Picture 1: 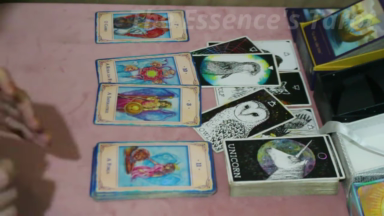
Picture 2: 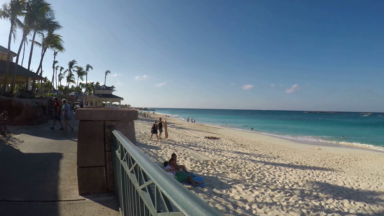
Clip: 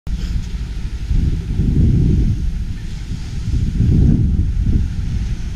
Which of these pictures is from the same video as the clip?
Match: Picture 2